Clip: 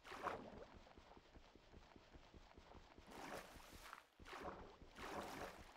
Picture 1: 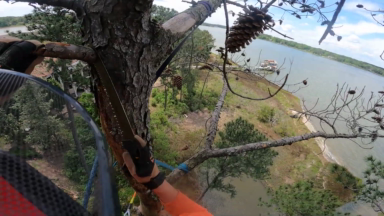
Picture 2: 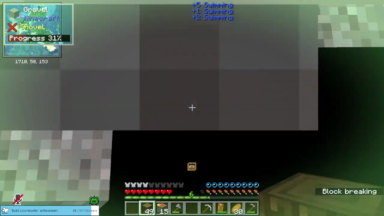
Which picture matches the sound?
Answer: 2